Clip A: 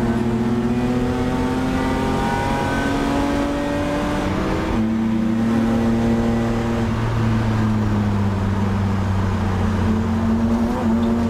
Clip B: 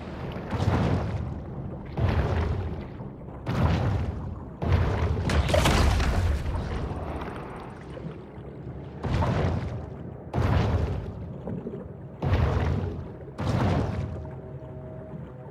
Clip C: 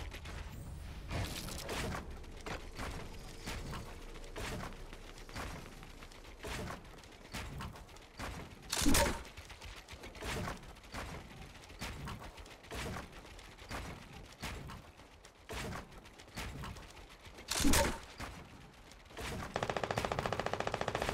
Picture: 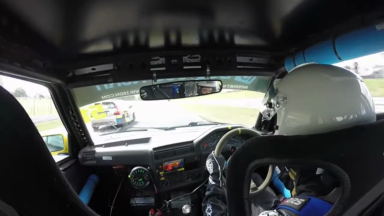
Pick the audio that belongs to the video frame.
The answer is A